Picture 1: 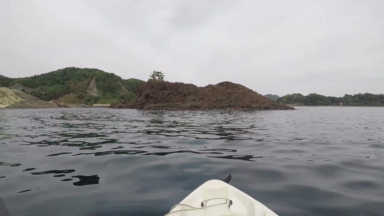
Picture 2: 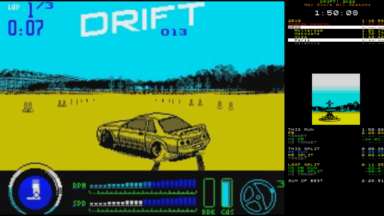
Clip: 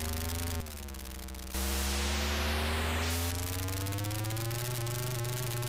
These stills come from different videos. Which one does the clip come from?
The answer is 2